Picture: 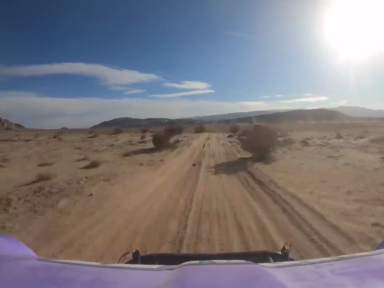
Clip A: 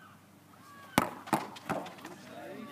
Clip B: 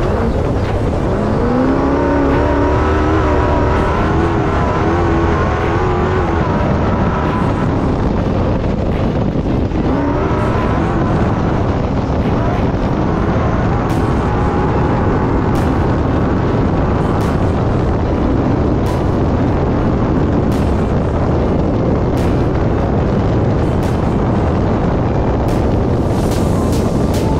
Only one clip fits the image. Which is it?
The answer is B